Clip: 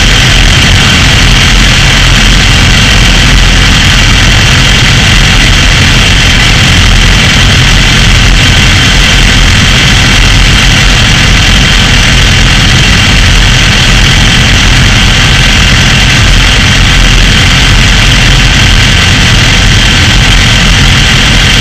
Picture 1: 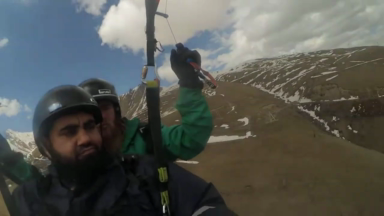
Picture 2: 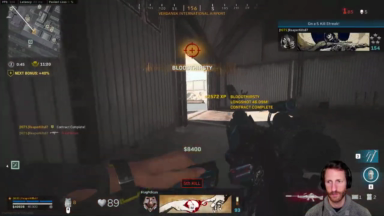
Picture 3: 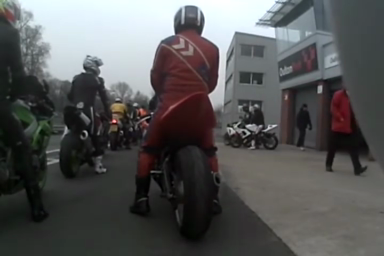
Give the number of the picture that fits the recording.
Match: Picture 3